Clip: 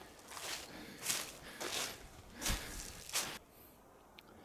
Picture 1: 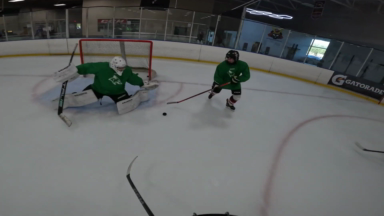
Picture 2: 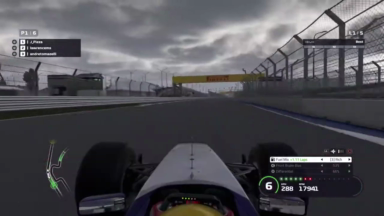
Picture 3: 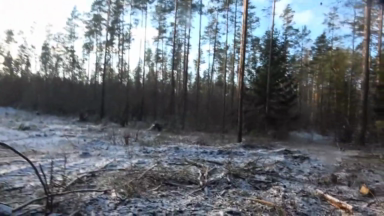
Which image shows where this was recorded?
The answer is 3